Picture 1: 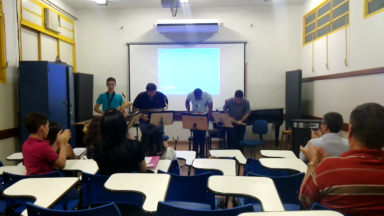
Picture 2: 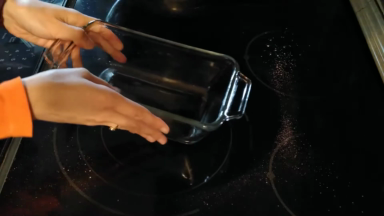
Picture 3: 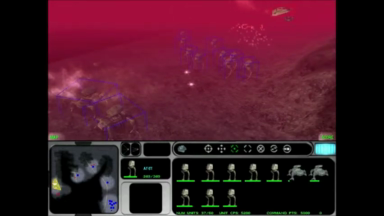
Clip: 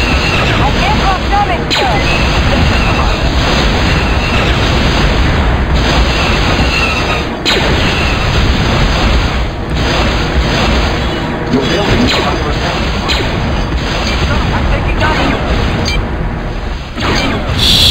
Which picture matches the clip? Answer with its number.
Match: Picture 3